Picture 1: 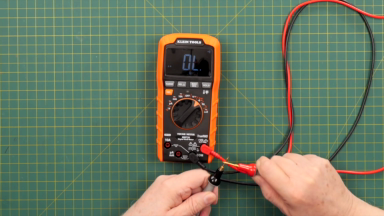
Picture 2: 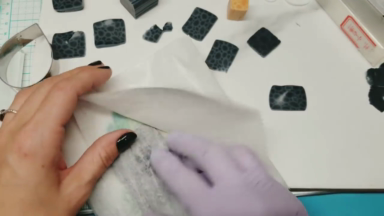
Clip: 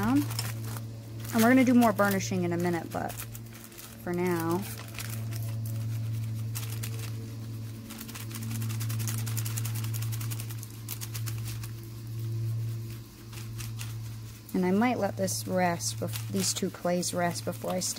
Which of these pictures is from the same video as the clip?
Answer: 2